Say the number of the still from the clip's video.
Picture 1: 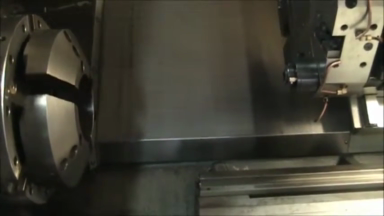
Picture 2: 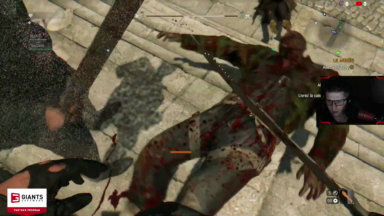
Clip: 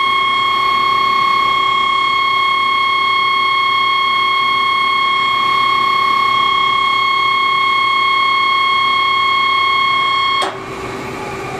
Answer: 1